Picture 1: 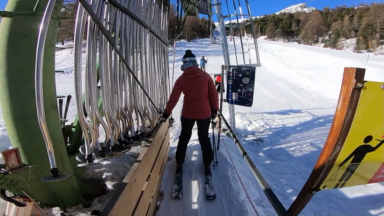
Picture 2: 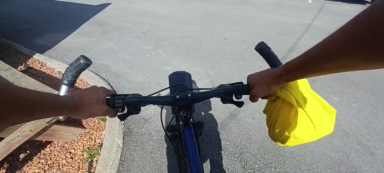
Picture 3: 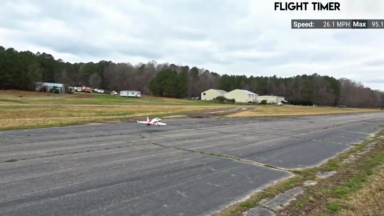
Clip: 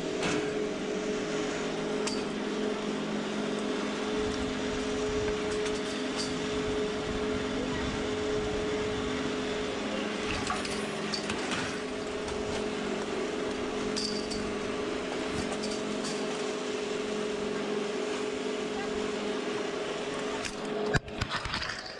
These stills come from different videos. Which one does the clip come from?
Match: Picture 1